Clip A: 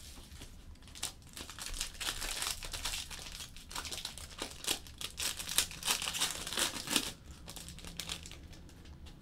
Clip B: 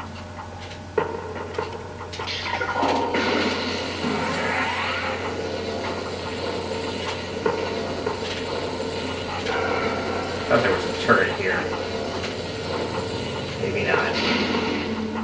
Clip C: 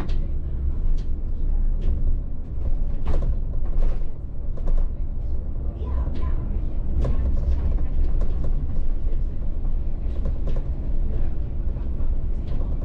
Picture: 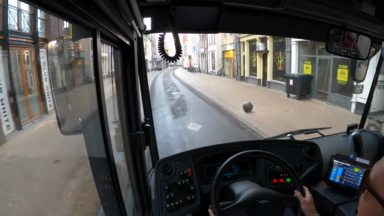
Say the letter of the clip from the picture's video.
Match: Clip C